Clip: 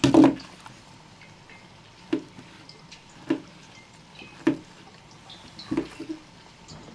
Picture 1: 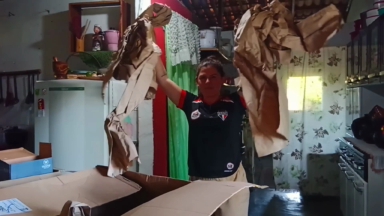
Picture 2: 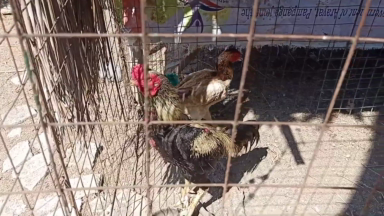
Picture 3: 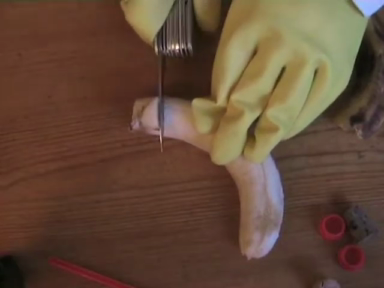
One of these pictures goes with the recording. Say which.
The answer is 3